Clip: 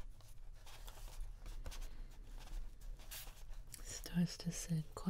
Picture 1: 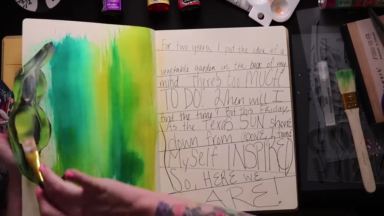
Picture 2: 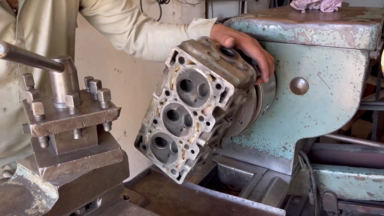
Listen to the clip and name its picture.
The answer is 1